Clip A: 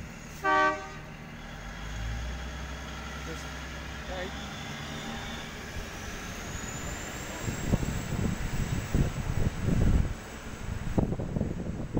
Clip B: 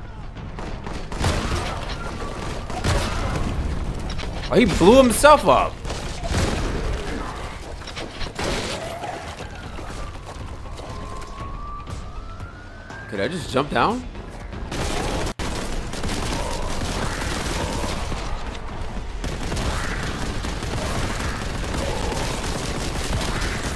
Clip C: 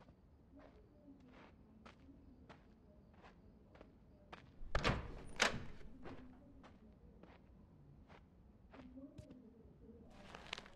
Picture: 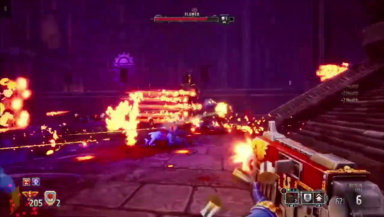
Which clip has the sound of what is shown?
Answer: B